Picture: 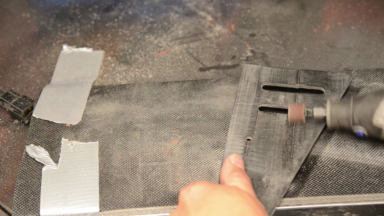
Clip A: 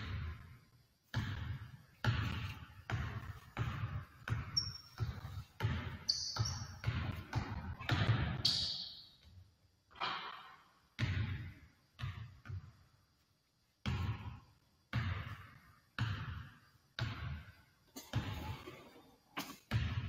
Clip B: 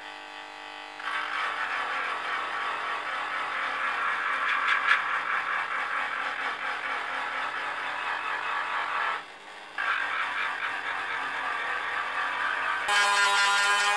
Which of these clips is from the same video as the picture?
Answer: B